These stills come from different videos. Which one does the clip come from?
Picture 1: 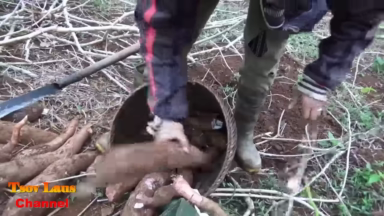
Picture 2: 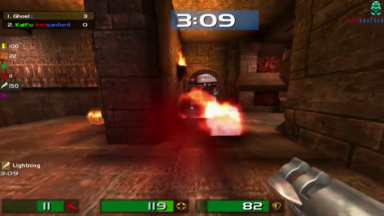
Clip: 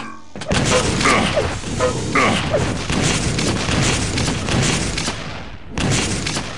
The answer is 2